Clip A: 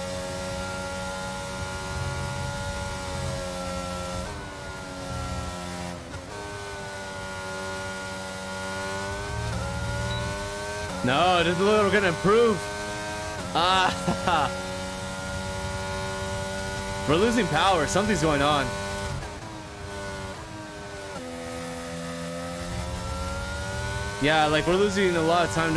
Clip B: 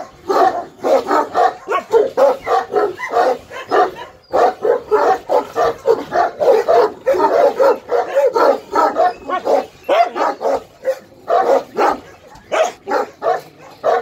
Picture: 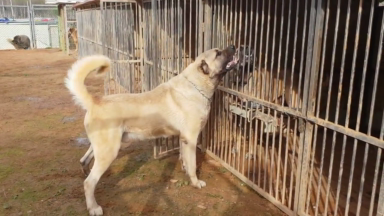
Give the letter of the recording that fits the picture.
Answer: B